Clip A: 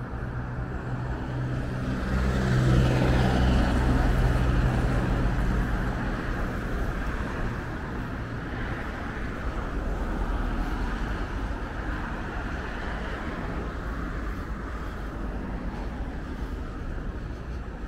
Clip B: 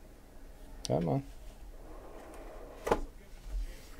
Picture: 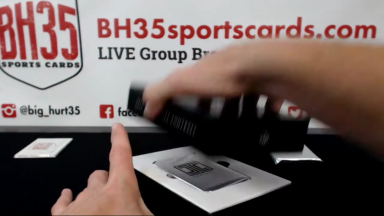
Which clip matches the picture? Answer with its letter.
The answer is B